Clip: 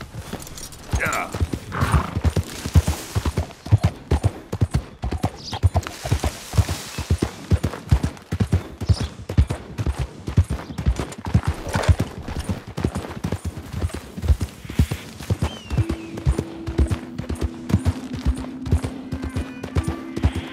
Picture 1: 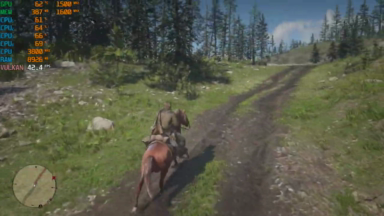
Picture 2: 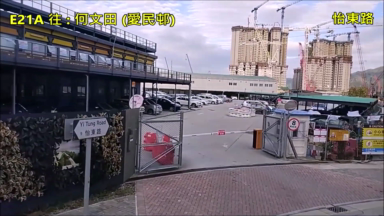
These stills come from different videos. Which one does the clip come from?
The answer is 1